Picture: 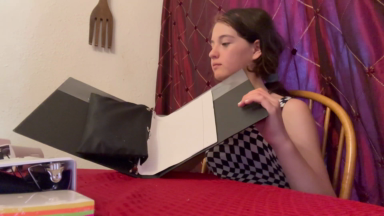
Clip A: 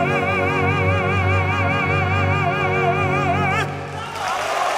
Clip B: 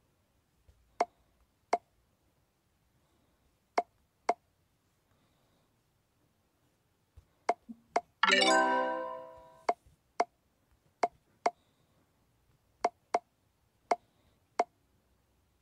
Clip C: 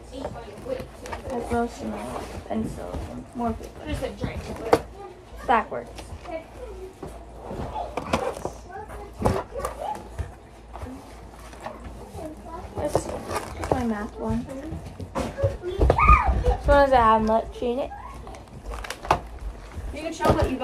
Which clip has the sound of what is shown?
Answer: C